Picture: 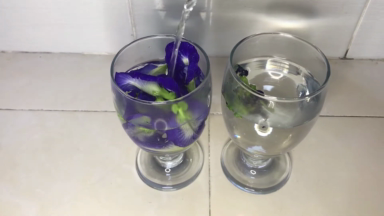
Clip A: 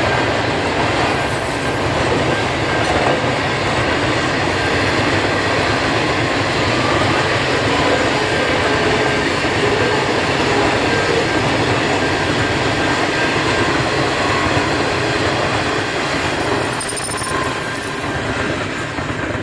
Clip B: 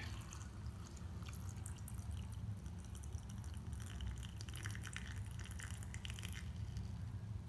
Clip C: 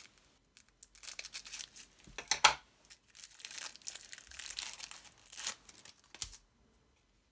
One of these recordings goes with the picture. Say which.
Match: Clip B